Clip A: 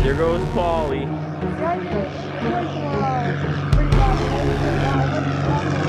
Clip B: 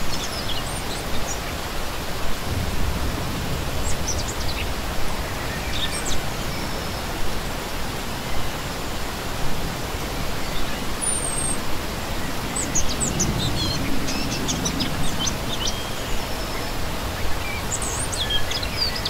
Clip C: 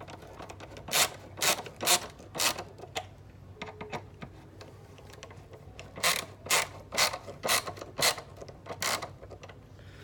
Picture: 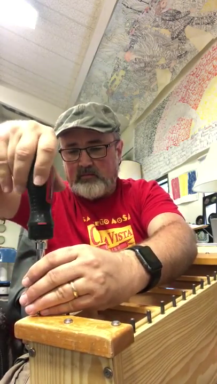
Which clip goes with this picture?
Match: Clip C